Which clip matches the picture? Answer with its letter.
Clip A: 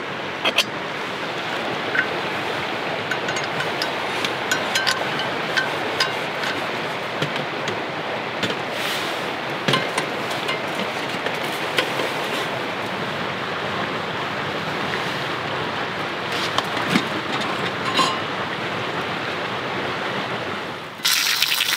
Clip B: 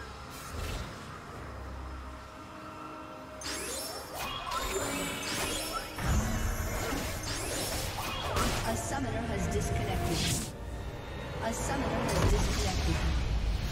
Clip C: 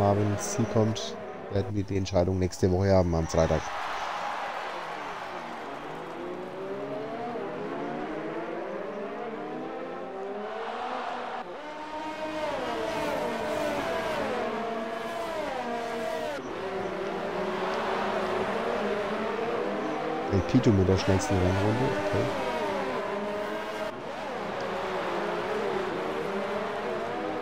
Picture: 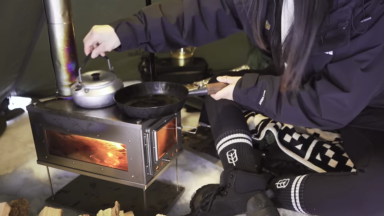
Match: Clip A